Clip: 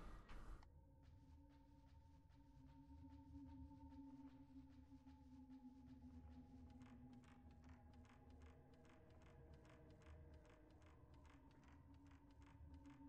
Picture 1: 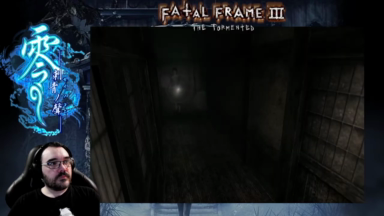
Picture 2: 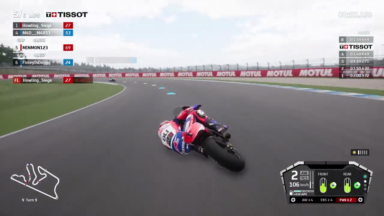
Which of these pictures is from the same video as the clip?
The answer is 1